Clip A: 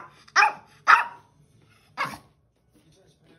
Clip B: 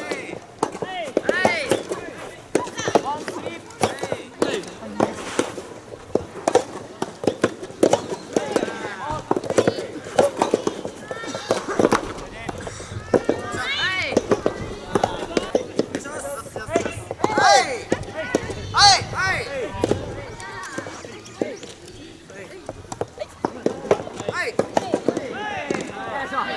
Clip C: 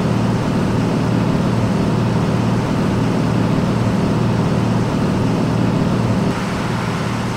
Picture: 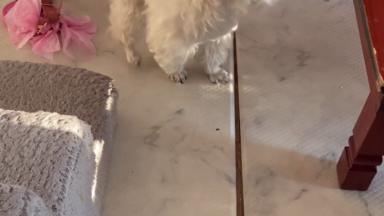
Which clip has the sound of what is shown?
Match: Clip A